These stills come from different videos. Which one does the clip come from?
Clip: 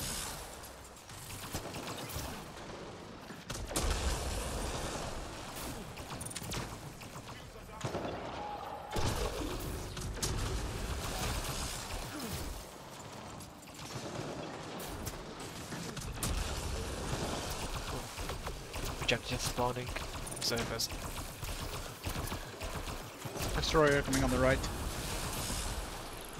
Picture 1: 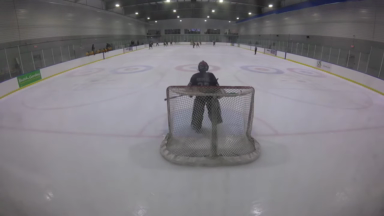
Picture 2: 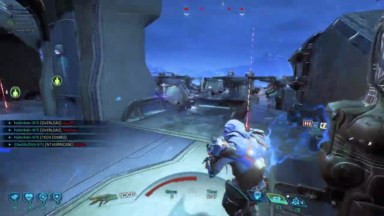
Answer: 2